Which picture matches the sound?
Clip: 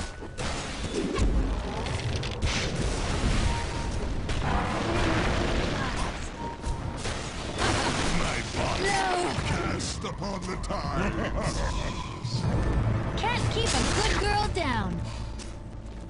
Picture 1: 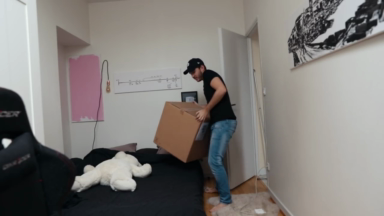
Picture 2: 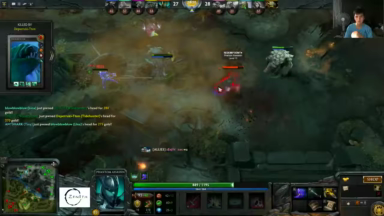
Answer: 2